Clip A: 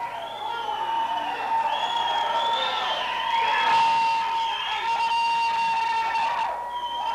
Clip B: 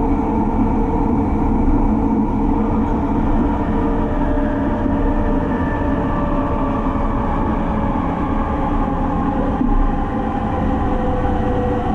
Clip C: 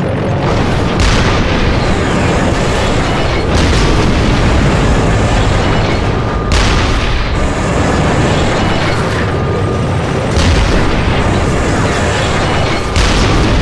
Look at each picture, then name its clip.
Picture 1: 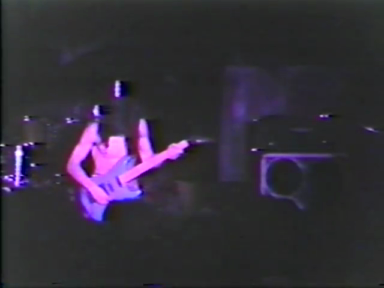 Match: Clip A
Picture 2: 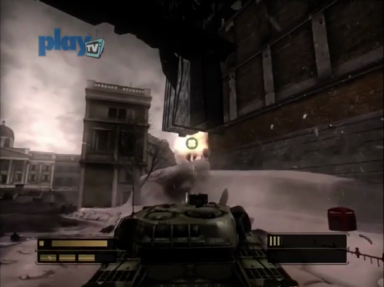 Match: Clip C